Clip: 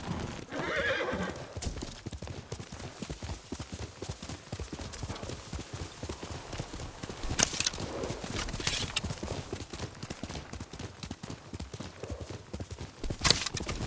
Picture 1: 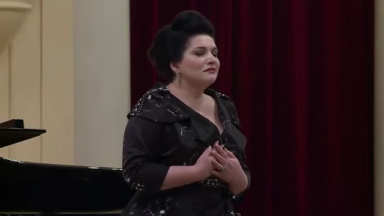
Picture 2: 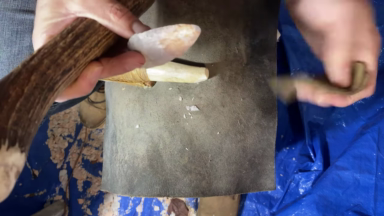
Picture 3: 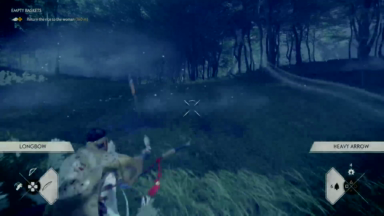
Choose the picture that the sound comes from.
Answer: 3